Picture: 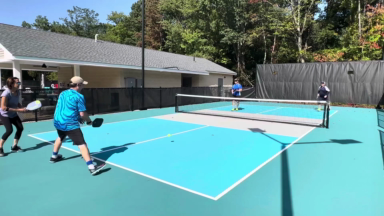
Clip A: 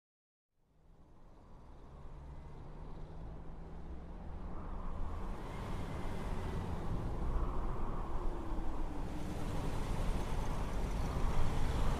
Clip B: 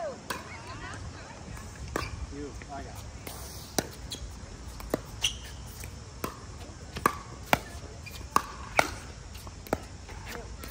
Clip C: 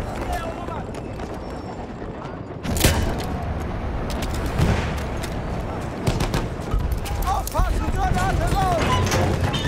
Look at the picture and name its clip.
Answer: B